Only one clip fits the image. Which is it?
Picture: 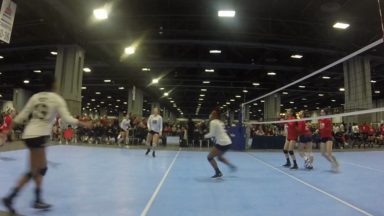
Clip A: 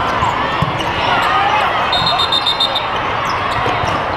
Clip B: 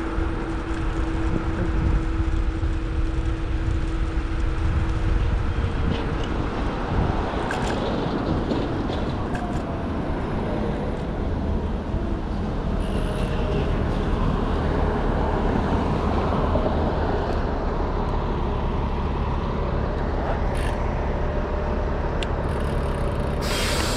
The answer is A